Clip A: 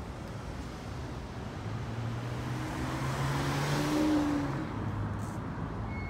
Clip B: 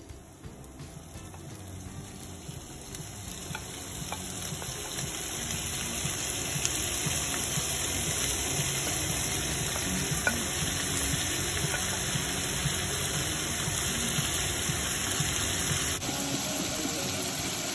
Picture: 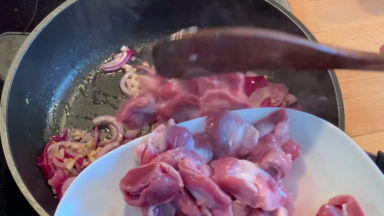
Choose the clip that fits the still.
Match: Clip B